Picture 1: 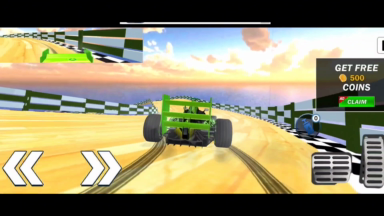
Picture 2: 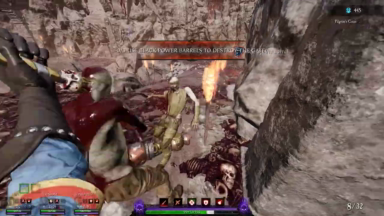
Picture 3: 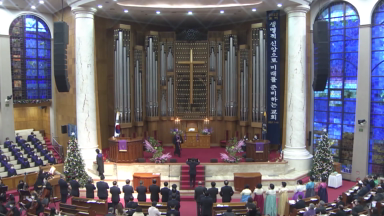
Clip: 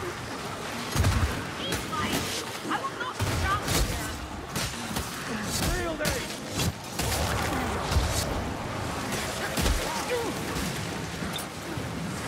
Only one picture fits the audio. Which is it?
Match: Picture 2